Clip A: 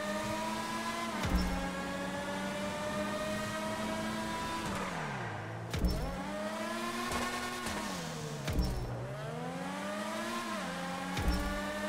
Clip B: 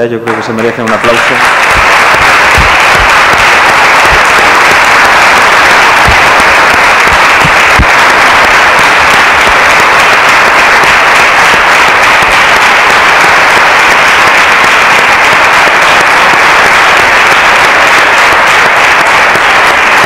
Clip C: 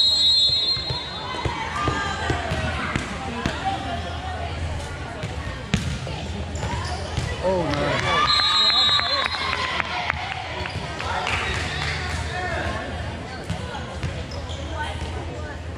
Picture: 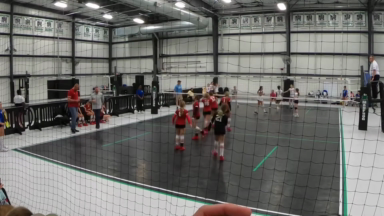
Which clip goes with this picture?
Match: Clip C